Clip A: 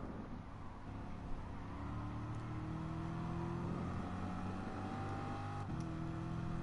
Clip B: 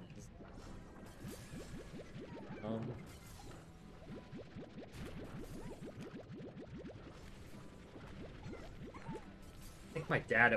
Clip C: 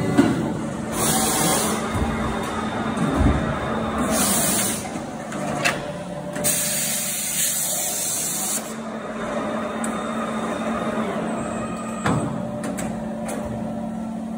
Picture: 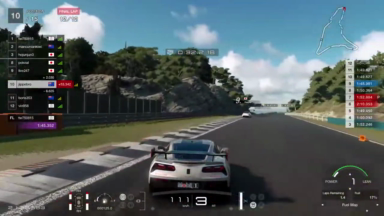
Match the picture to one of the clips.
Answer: A